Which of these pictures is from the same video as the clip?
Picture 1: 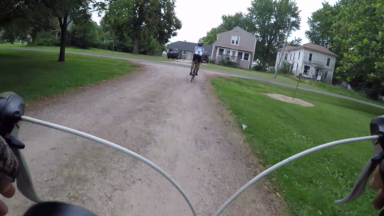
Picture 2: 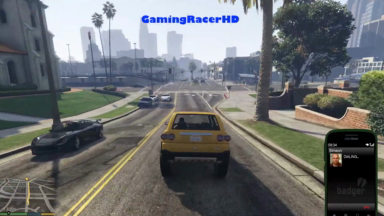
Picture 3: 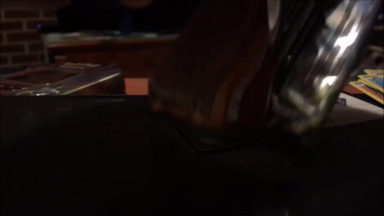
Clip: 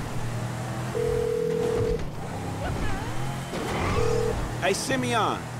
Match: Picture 2